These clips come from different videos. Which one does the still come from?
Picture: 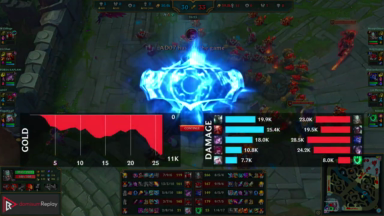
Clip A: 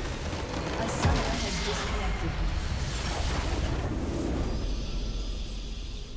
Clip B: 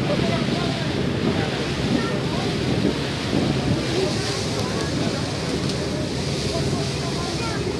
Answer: A